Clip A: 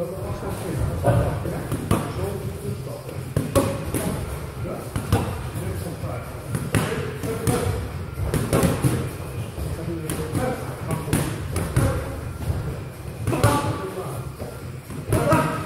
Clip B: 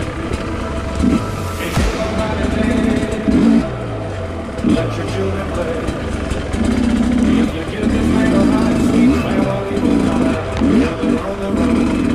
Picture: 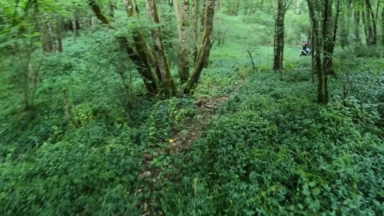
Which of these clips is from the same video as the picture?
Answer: B